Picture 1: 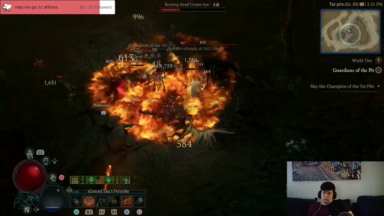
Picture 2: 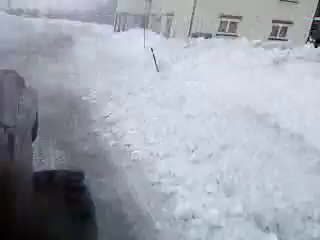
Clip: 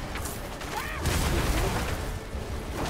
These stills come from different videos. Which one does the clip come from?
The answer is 1